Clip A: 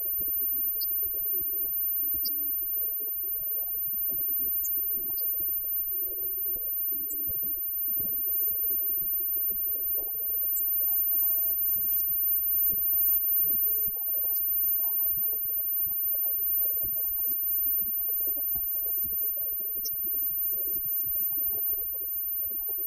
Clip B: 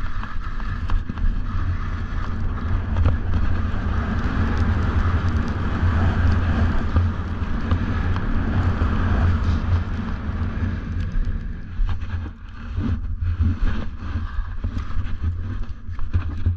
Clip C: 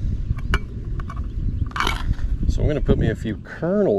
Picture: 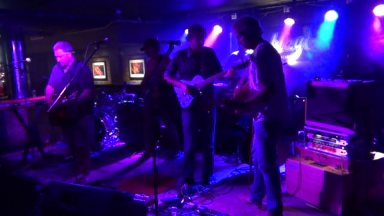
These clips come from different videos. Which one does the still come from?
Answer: A